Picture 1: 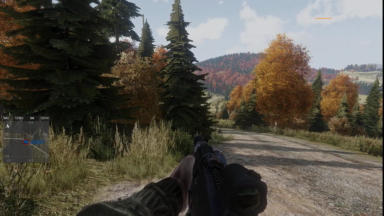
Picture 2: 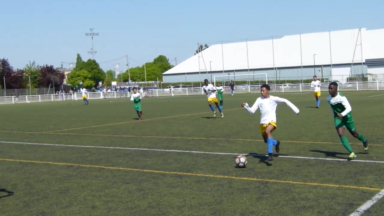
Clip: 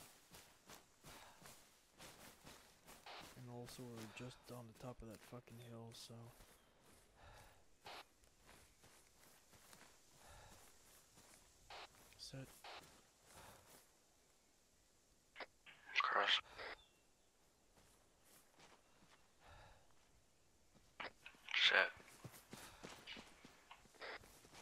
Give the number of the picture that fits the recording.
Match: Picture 1